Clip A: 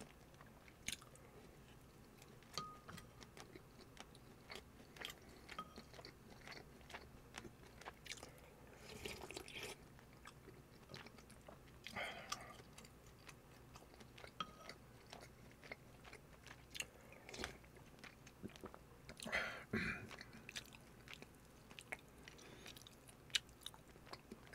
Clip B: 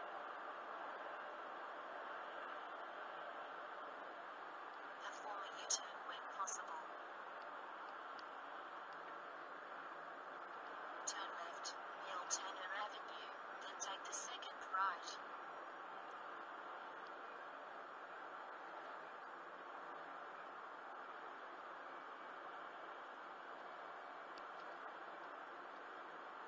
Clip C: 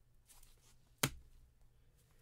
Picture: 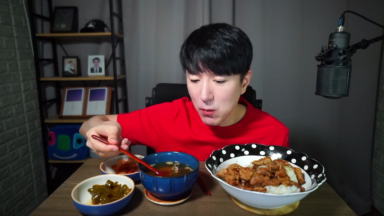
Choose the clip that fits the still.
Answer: A